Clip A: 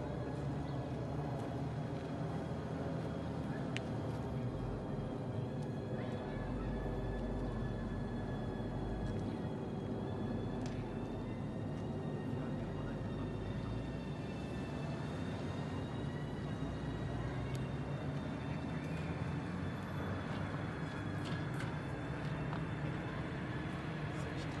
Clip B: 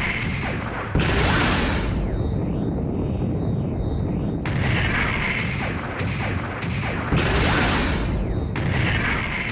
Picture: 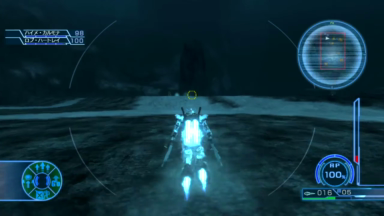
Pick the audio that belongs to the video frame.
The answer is B